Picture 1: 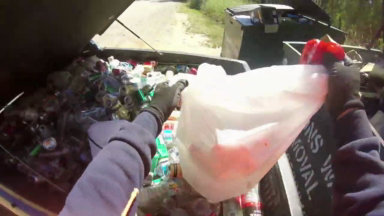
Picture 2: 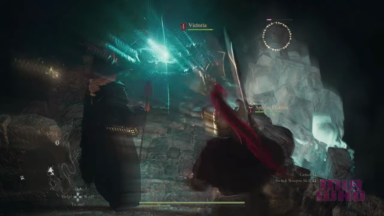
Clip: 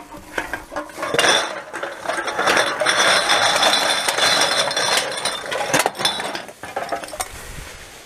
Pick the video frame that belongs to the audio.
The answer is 1